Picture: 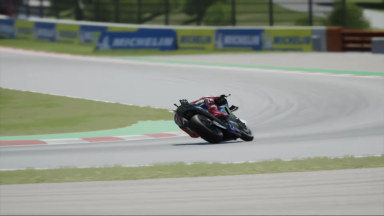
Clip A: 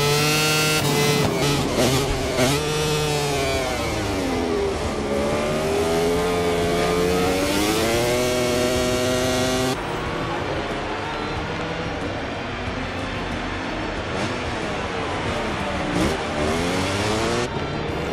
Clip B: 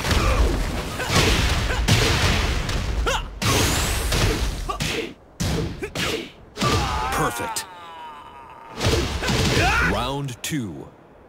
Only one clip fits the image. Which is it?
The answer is A